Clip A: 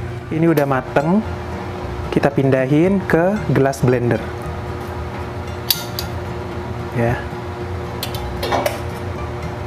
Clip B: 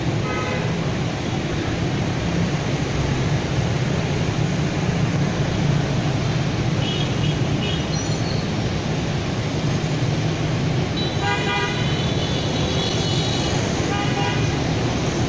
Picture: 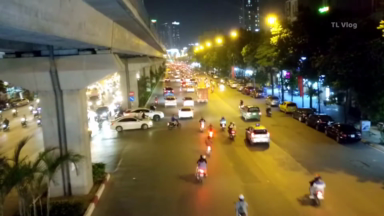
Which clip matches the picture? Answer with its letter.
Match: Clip B